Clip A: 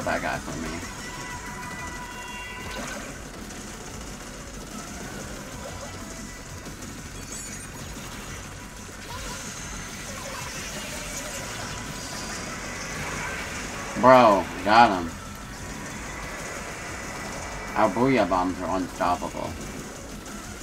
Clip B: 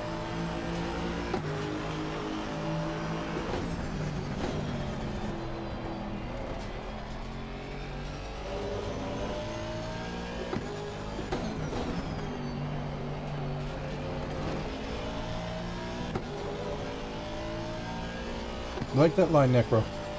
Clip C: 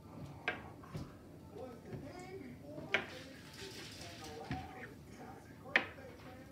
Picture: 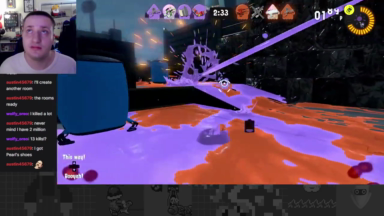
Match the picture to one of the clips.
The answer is A